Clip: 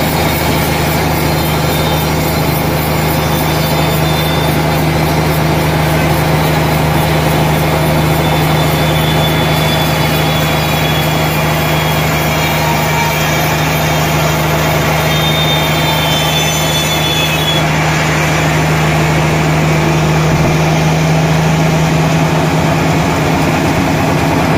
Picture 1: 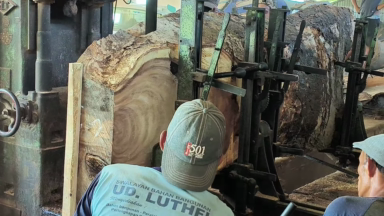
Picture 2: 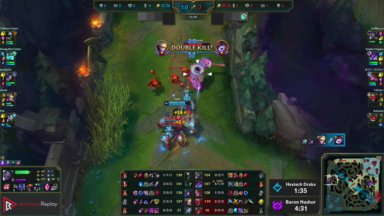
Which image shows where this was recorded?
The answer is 1